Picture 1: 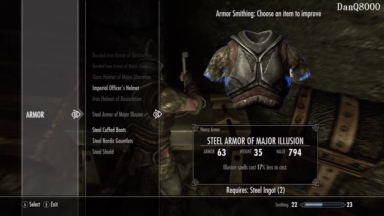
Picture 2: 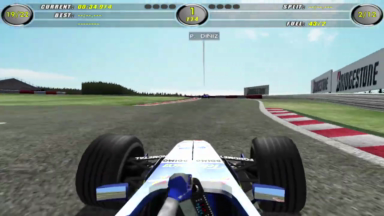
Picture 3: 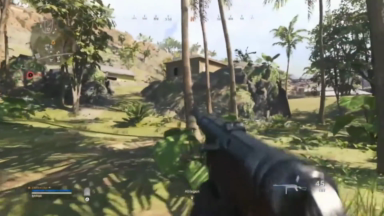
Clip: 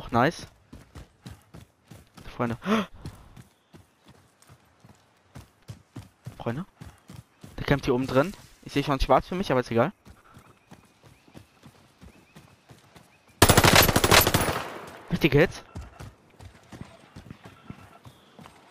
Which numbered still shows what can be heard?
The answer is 3